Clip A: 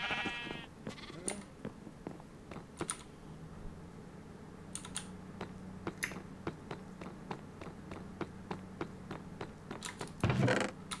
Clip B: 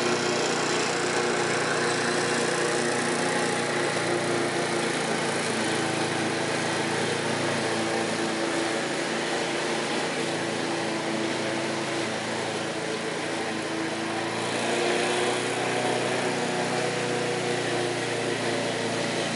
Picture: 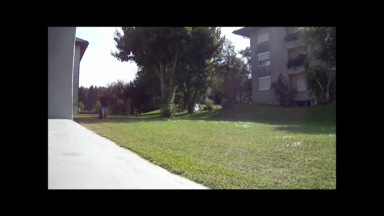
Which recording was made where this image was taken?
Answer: B